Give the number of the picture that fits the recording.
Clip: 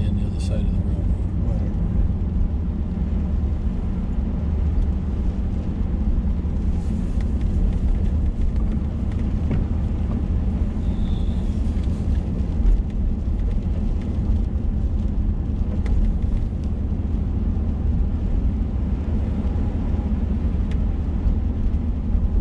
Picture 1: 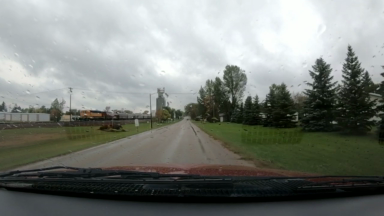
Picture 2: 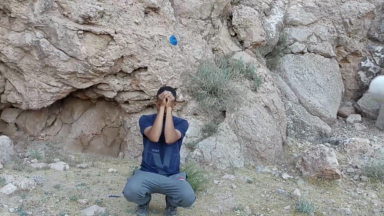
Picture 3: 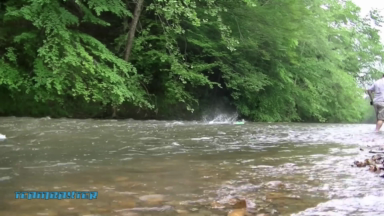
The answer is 1